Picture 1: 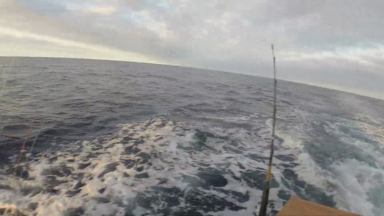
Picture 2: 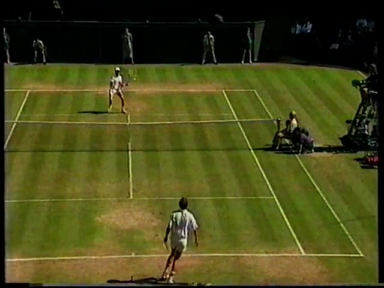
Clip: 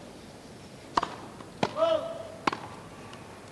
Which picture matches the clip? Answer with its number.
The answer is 2